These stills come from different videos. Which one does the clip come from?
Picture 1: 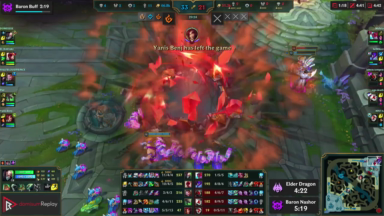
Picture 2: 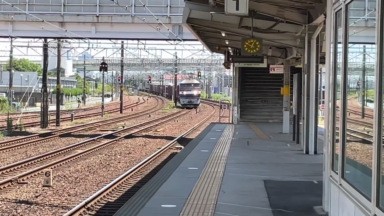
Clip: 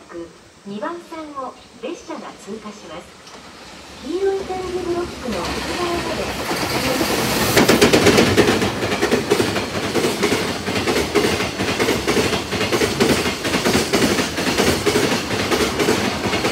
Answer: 2